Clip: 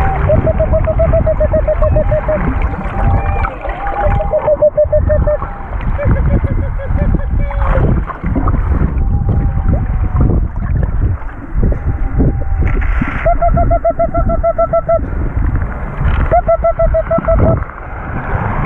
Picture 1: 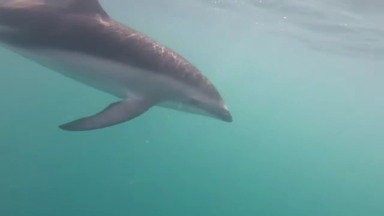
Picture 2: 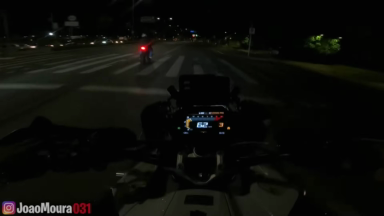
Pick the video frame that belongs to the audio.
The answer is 1